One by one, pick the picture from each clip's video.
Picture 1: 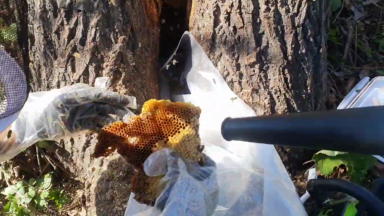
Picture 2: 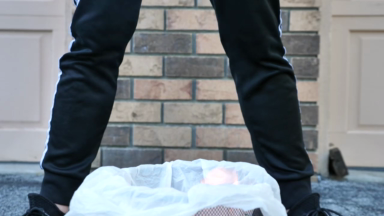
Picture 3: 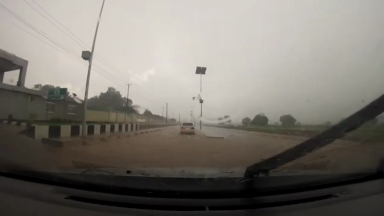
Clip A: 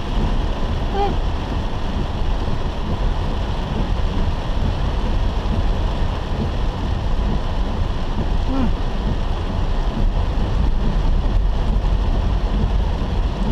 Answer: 3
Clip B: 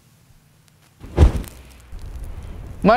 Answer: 2